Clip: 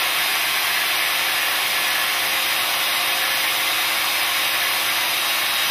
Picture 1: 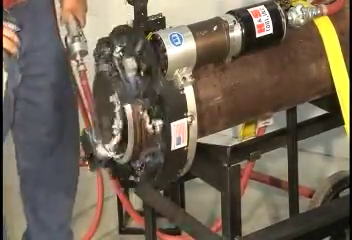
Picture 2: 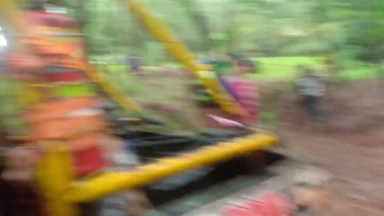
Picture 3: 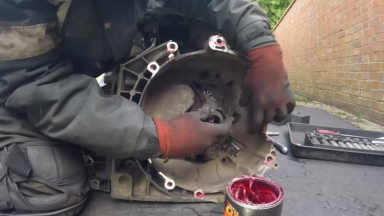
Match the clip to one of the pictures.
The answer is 1